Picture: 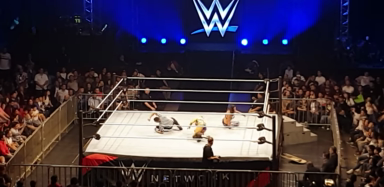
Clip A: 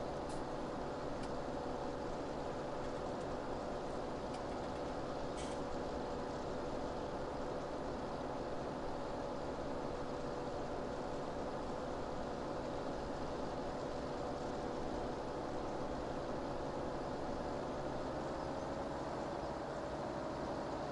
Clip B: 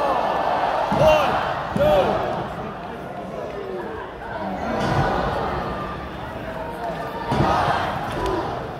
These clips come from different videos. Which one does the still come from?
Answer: B